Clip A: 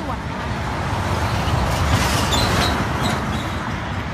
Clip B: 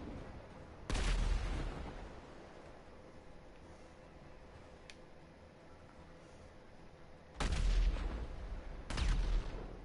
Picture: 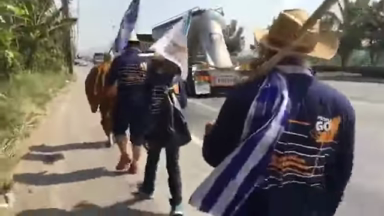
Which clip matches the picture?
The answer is A